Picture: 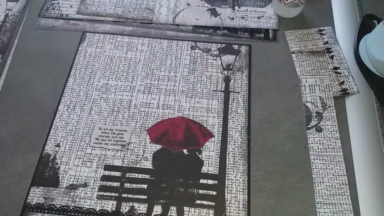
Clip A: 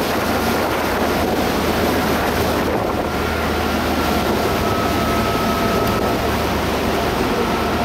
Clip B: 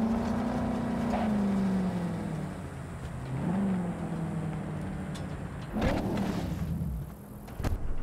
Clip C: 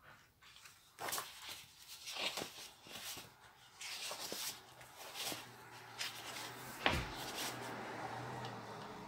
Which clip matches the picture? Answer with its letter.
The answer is C